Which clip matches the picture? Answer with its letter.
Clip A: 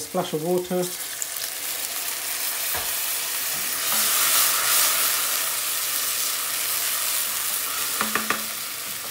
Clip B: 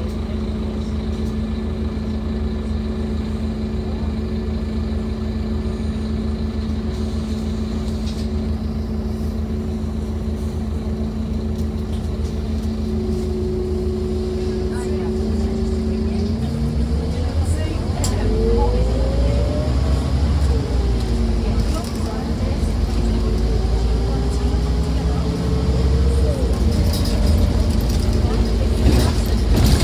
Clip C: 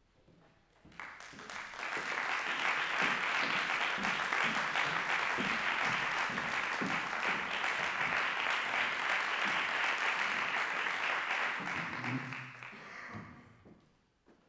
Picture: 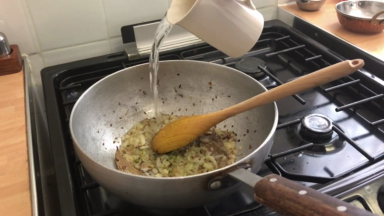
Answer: A